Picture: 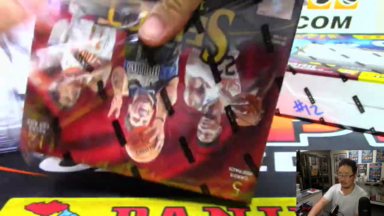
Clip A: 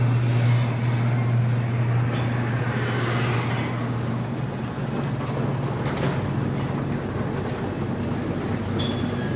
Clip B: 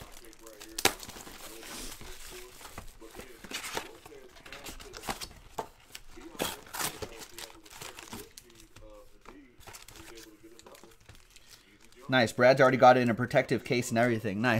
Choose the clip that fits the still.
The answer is B